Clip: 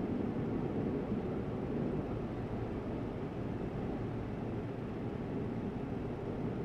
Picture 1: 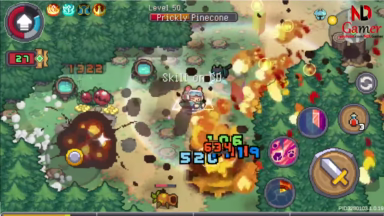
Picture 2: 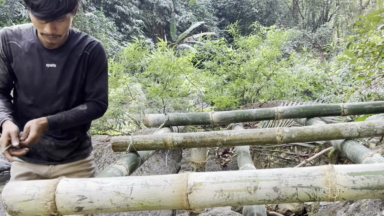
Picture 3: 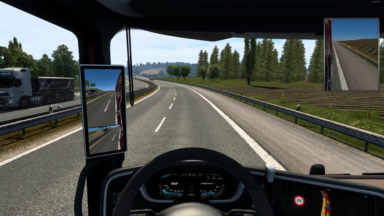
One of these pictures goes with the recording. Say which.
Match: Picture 3